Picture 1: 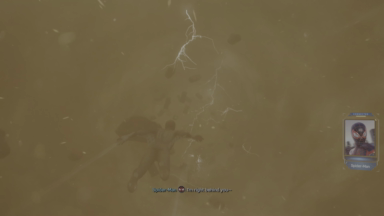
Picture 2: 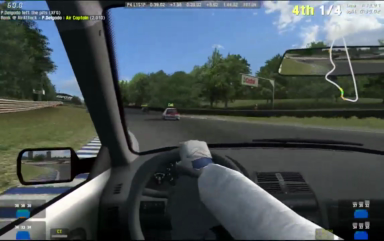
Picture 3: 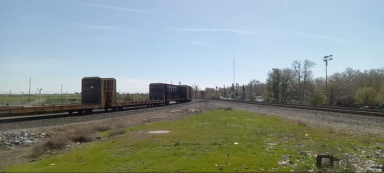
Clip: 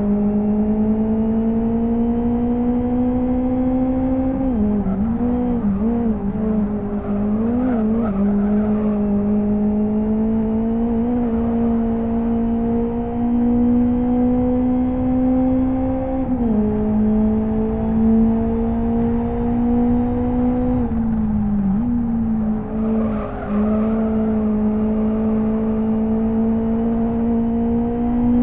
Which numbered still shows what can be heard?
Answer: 2